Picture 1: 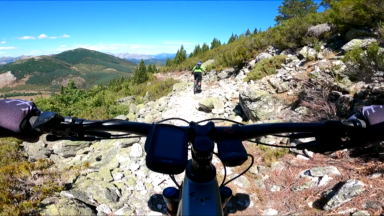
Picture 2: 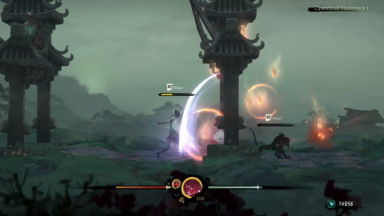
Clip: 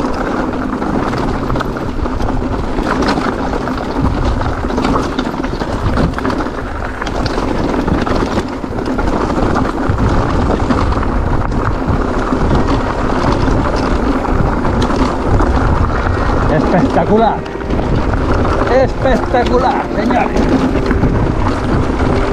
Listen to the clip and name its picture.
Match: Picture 1